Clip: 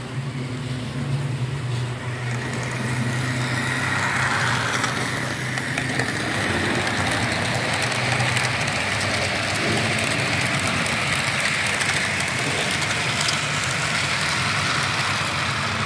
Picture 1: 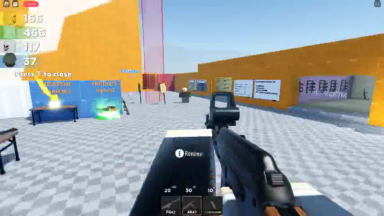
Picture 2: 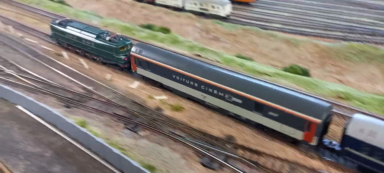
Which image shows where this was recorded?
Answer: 2